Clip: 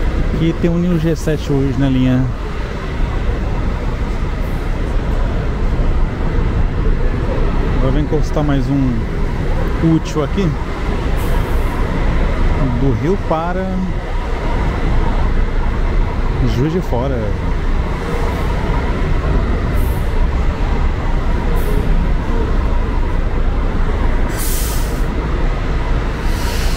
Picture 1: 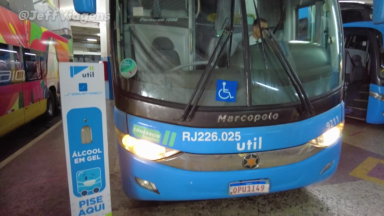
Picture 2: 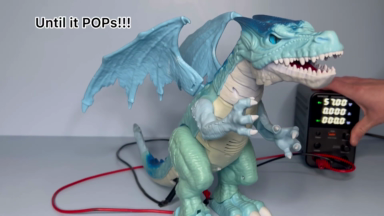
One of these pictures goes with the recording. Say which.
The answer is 1